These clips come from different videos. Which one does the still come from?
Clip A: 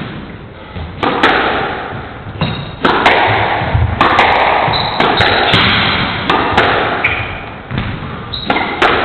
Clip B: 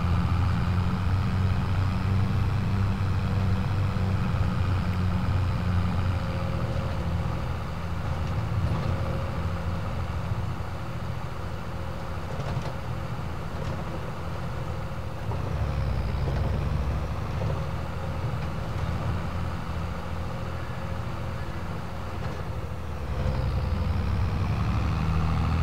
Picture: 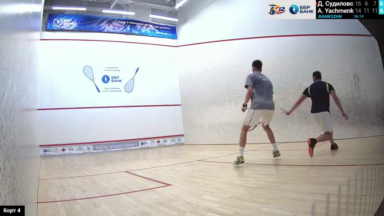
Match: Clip A